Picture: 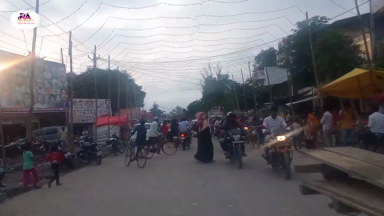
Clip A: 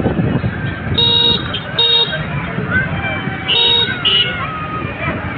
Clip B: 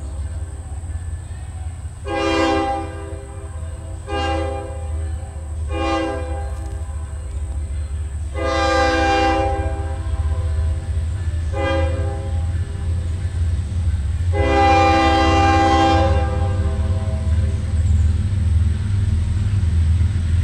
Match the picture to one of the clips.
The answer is A